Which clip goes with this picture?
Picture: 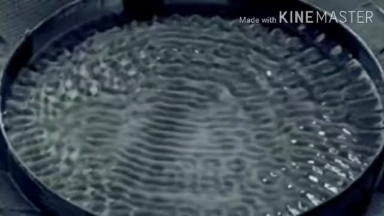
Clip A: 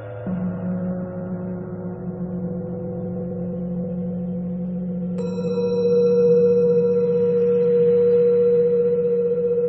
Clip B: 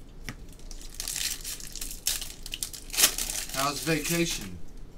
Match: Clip A